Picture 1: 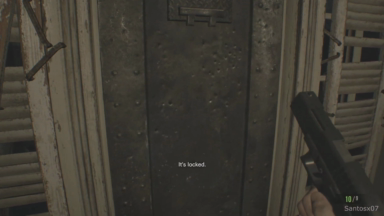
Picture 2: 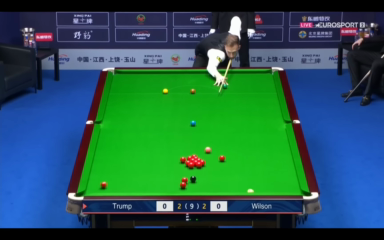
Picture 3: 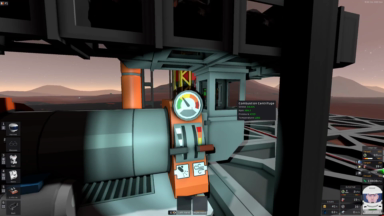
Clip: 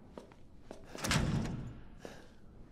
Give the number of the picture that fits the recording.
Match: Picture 1